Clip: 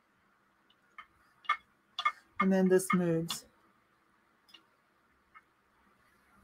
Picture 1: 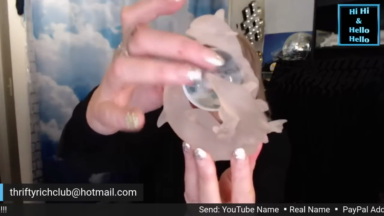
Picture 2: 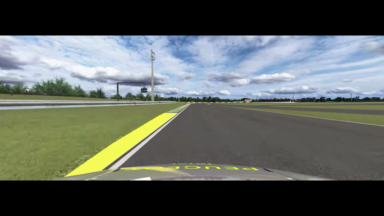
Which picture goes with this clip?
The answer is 1